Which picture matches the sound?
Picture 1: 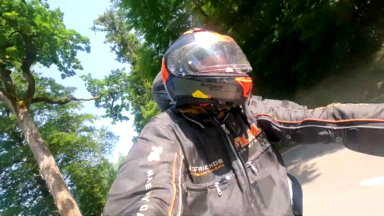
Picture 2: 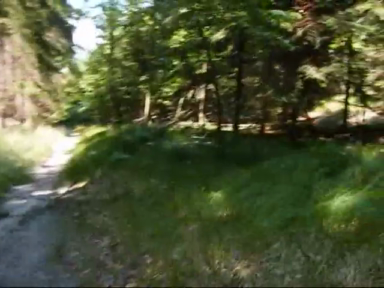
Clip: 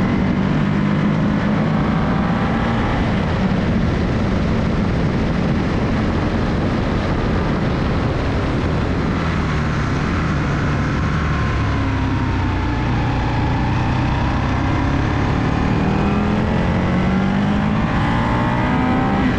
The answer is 1